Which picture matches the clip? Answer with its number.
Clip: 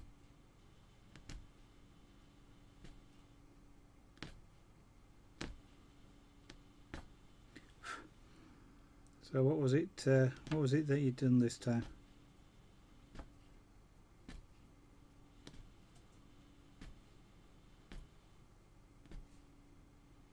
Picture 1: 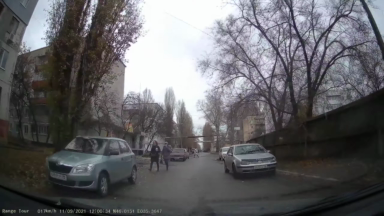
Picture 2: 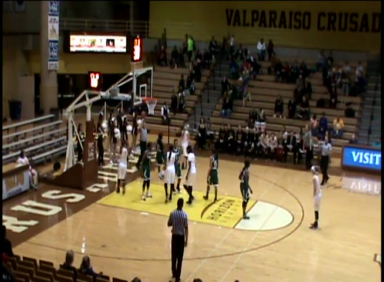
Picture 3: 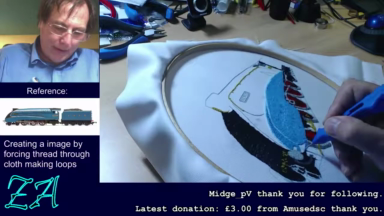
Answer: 3